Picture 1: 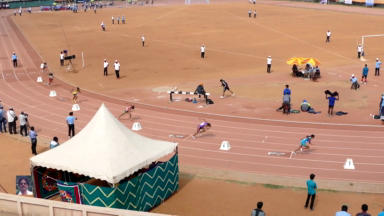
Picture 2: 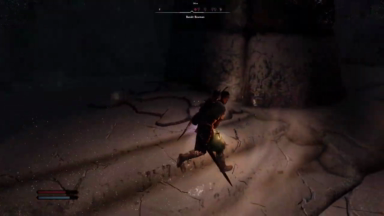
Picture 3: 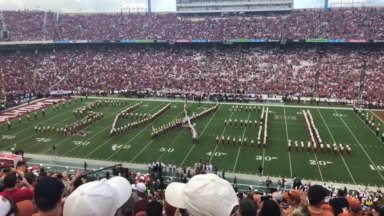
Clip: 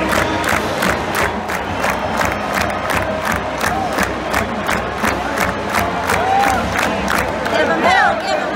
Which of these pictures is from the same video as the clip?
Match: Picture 3